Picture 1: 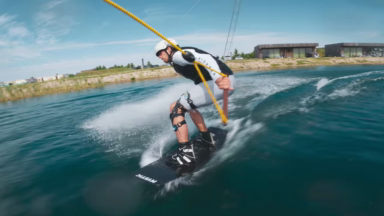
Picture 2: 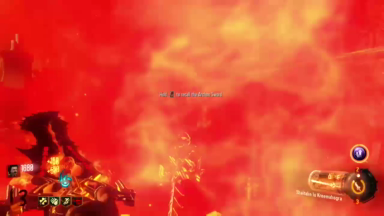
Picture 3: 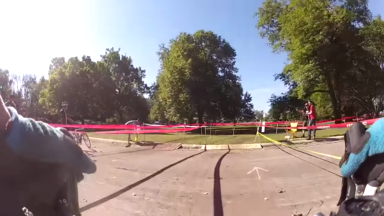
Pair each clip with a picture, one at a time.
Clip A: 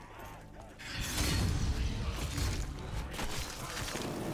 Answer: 2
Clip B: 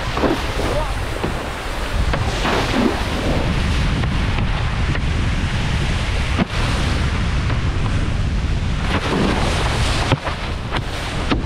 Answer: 1